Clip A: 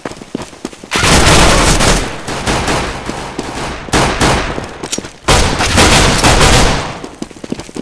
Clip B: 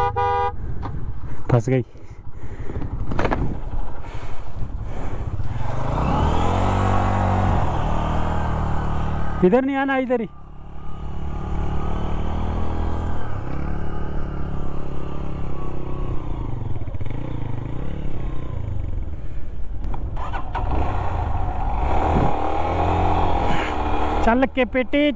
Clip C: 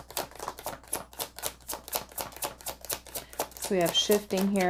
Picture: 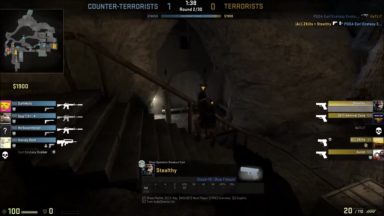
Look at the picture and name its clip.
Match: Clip A